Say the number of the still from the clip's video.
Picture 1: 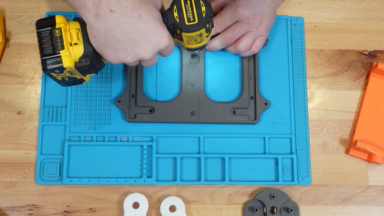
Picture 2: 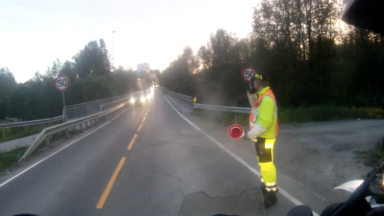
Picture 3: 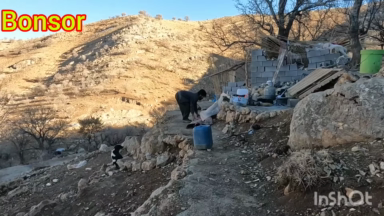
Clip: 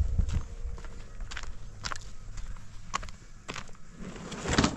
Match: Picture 3